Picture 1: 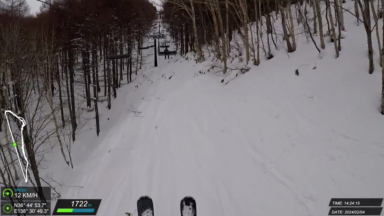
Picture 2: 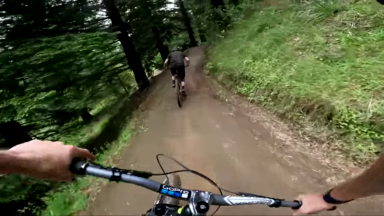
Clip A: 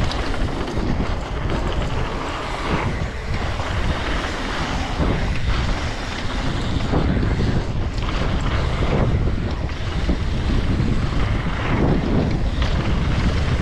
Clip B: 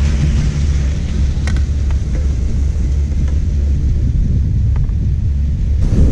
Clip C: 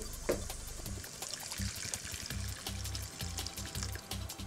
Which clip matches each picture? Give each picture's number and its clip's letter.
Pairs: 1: B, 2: A